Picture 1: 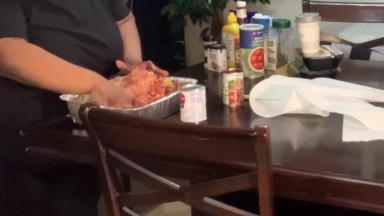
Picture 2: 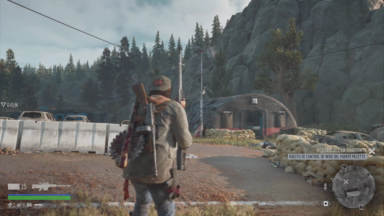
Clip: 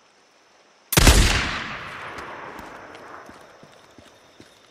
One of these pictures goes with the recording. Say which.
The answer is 2